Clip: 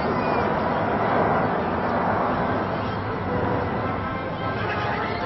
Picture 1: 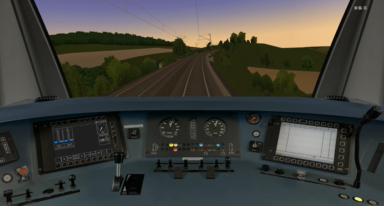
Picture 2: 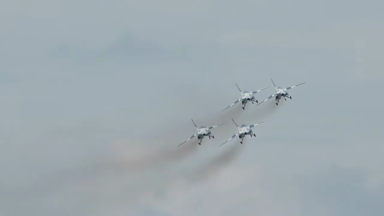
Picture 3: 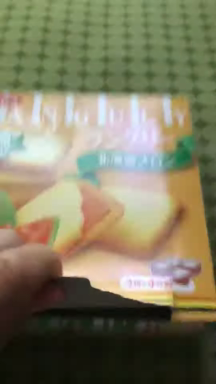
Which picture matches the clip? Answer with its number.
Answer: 2